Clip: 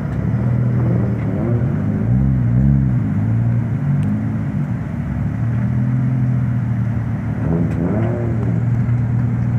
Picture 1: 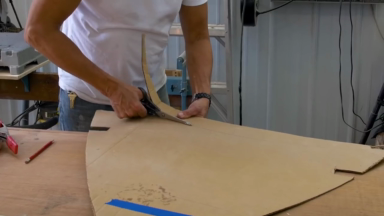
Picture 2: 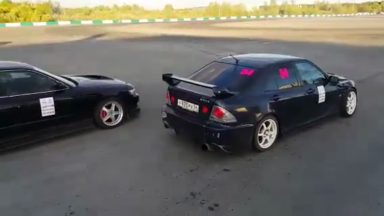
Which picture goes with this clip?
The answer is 2